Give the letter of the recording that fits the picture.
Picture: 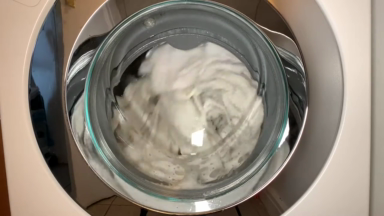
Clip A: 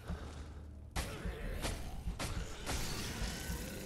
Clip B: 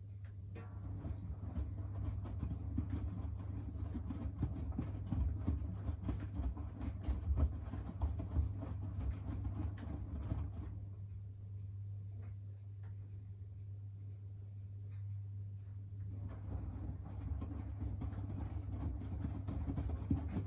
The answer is B